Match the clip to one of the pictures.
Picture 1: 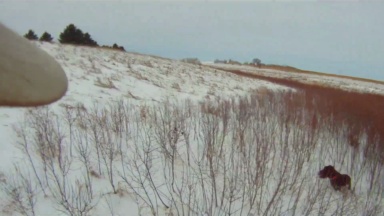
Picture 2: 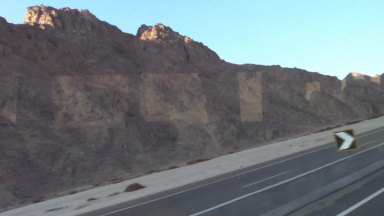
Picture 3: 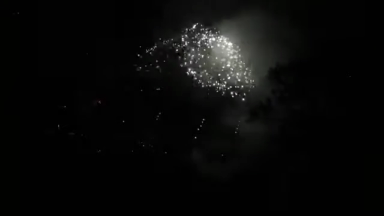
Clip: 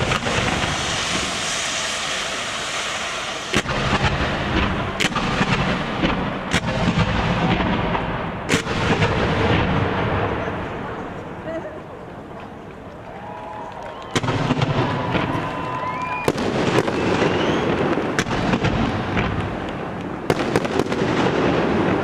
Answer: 3